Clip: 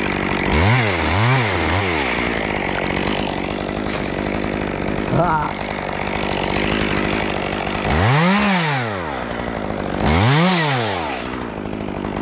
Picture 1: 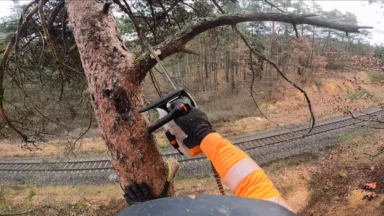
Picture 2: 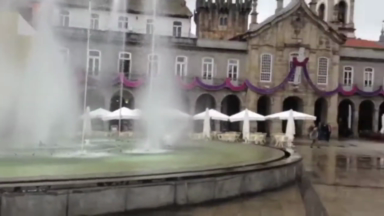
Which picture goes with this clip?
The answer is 1